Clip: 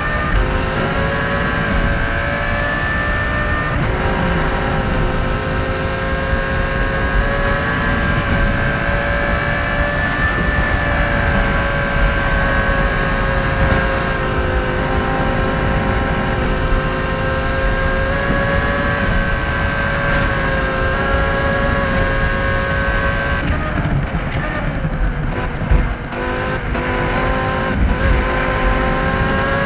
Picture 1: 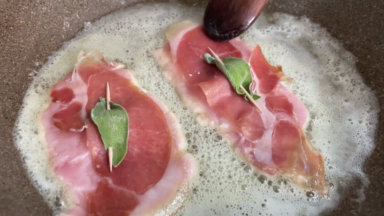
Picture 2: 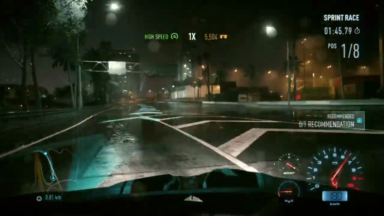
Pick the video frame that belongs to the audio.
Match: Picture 2